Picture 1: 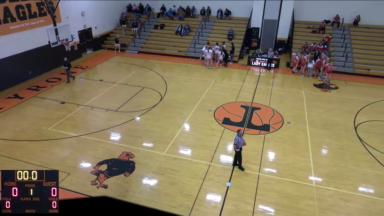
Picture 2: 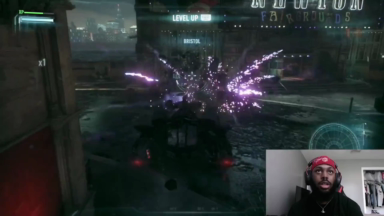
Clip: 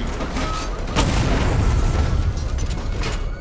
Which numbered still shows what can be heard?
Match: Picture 2